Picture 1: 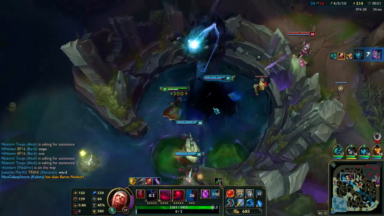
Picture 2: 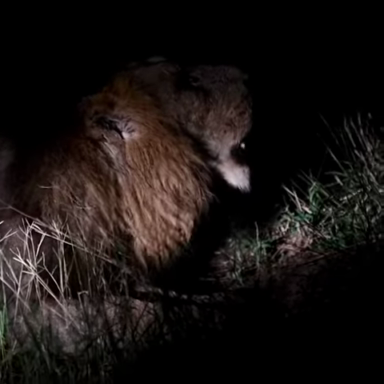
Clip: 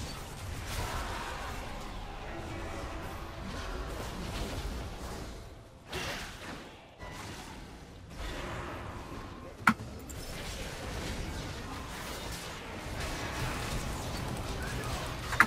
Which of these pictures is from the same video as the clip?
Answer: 1